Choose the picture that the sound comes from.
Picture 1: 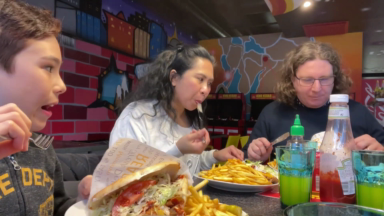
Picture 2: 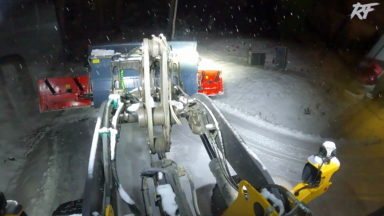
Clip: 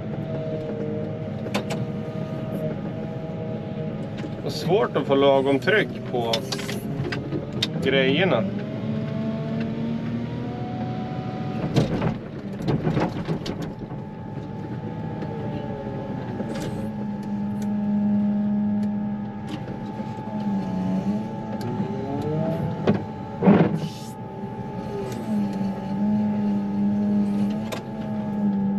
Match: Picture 2